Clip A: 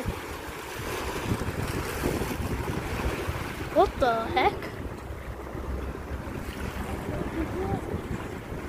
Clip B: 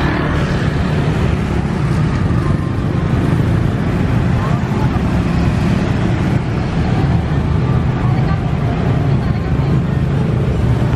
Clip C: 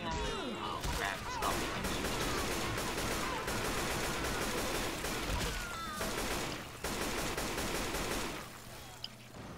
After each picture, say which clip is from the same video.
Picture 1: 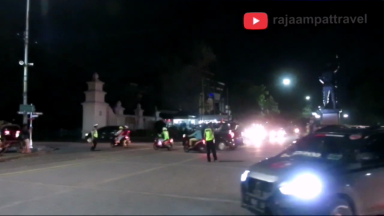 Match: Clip B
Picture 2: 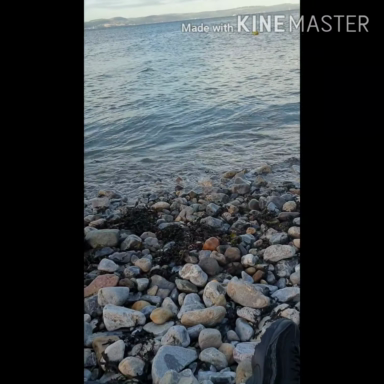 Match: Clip A